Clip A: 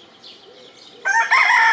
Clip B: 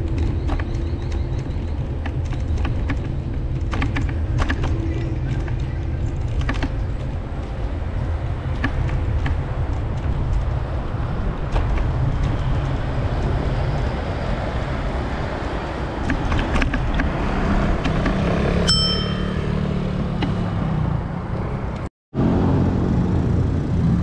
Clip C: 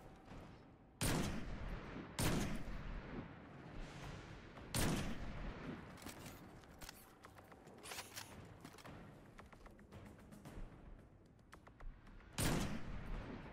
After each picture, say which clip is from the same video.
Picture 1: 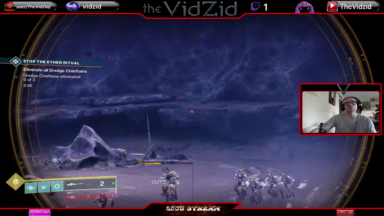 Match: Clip C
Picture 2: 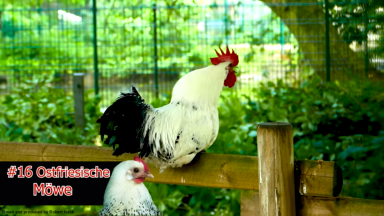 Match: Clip A